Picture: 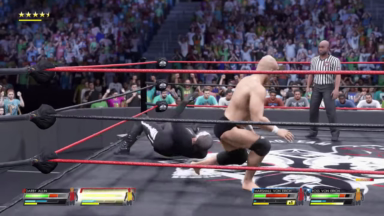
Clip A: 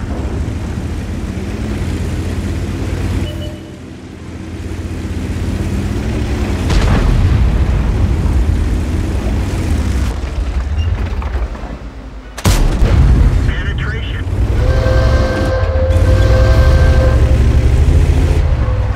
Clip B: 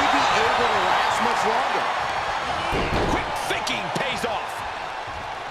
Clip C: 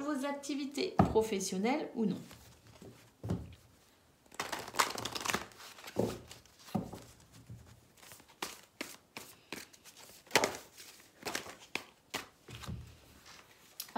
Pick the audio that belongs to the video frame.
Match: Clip B